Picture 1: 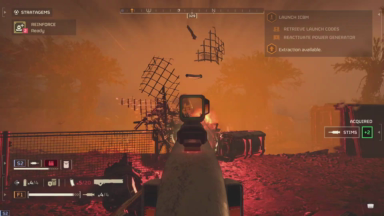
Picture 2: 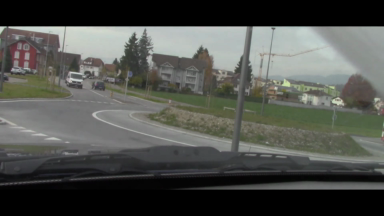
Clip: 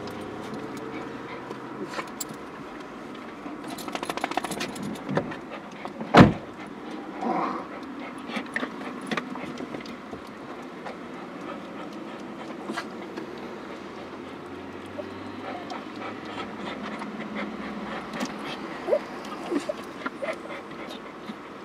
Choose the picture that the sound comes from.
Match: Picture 2